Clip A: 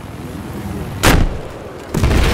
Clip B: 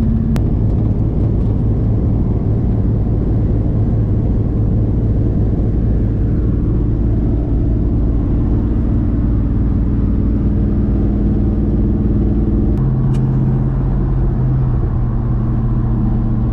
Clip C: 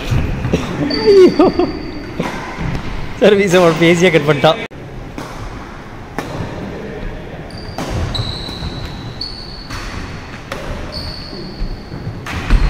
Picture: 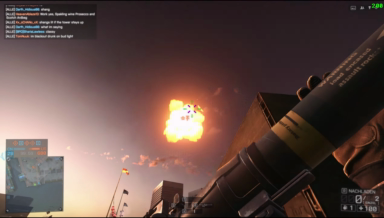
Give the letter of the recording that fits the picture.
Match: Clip A